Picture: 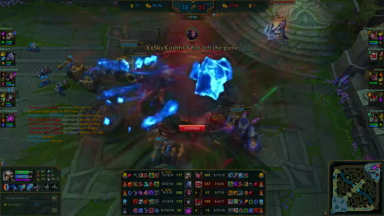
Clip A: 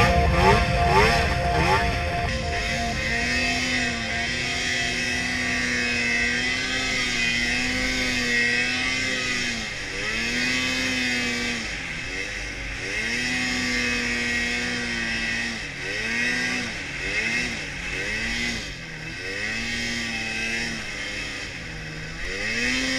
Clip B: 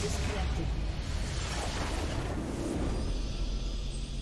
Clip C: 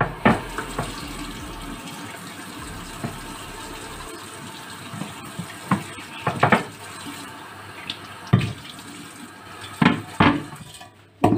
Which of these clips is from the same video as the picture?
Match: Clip B